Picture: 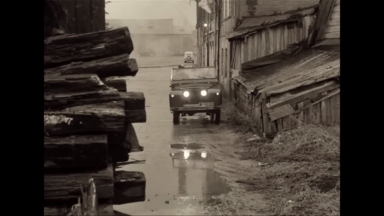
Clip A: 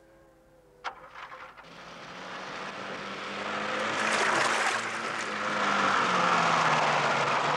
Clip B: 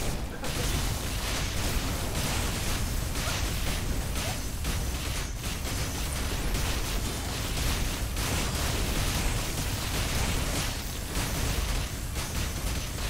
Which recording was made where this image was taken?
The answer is A